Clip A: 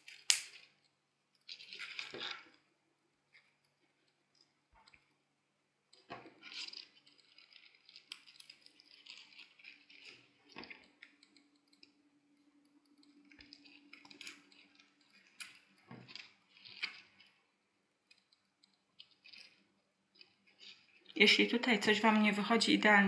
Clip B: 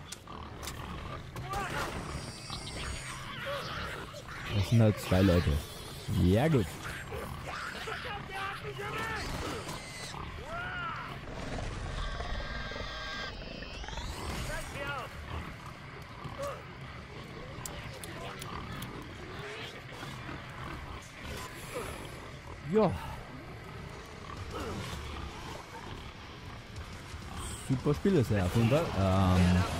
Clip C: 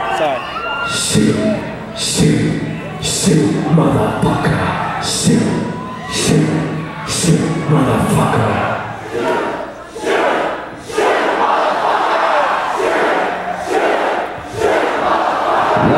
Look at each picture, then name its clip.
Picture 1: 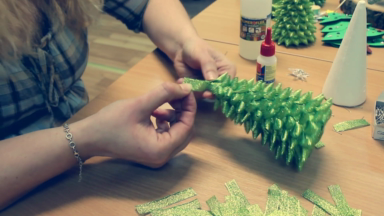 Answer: A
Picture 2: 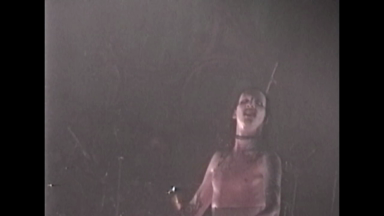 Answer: C